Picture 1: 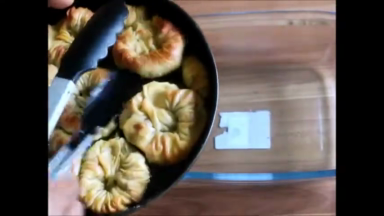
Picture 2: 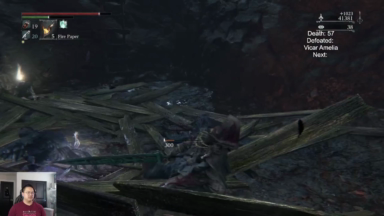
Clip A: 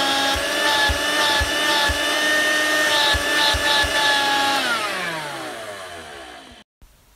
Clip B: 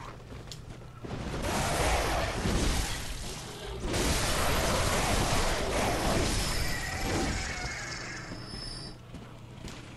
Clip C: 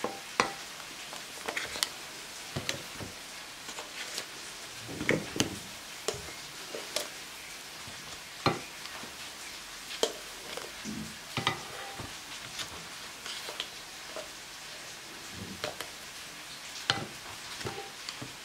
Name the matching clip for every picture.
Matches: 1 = C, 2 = B